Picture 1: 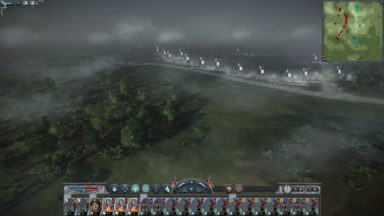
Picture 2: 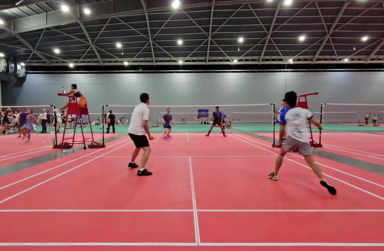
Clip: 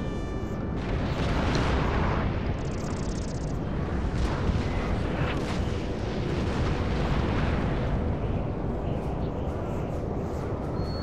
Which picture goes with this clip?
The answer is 1